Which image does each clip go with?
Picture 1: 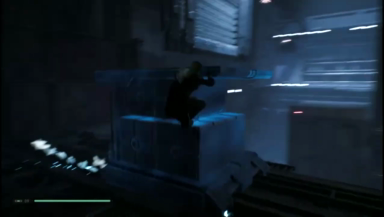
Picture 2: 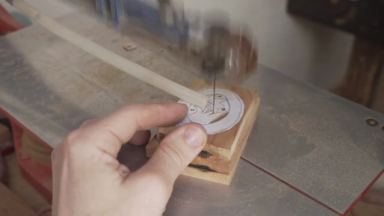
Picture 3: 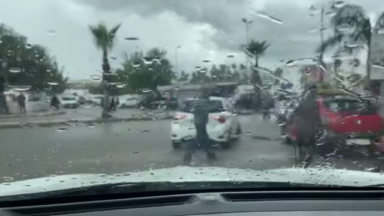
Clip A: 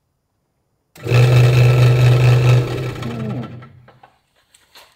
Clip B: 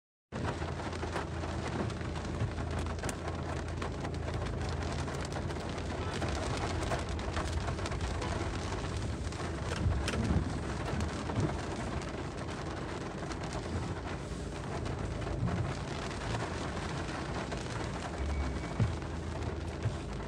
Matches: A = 2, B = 3